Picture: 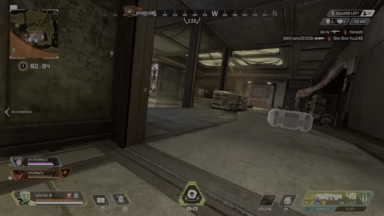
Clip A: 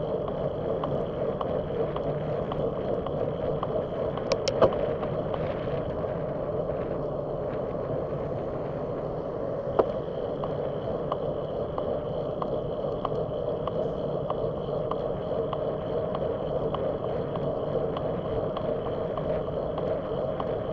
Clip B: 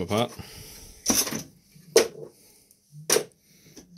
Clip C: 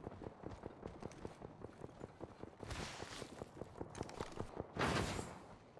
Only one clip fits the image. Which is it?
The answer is C